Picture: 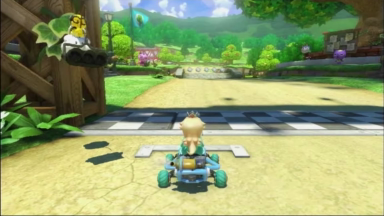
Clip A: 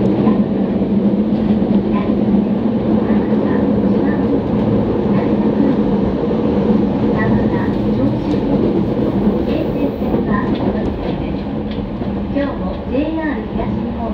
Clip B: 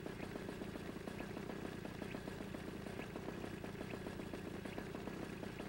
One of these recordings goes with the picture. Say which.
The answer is B